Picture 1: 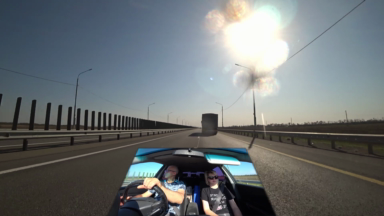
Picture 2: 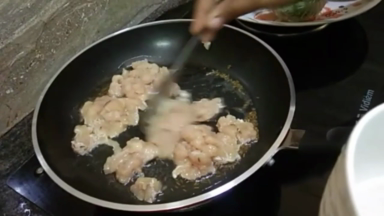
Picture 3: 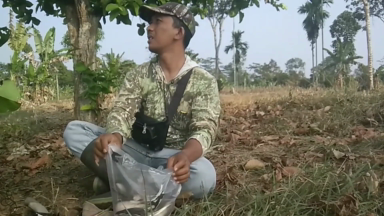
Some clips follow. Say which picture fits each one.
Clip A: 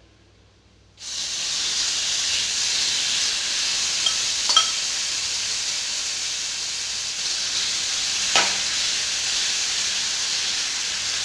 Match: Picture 2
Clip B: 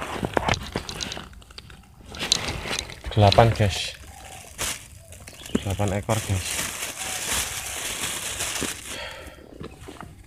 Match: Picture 3